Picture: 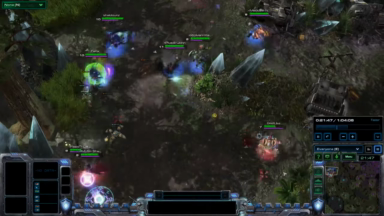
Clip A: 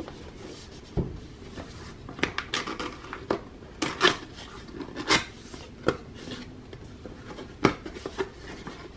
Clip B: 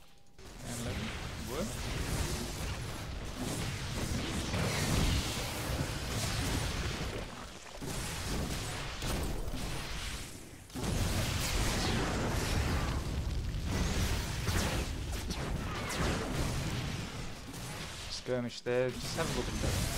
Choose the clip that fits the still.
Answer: B